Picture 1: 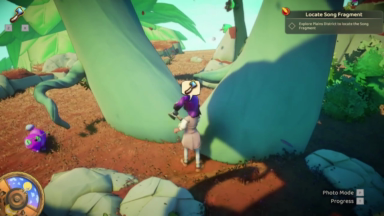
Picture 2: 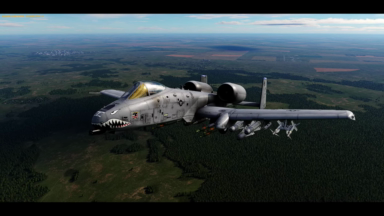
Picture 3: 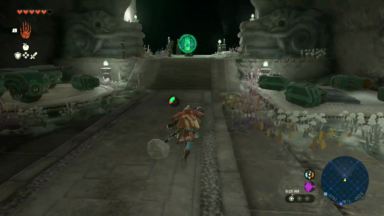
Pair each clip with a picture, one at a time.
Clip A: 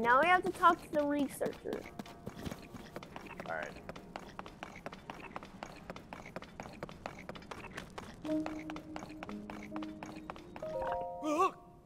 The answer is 3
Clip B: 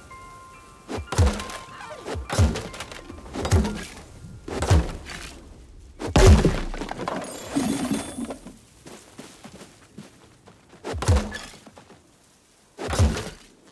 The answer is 1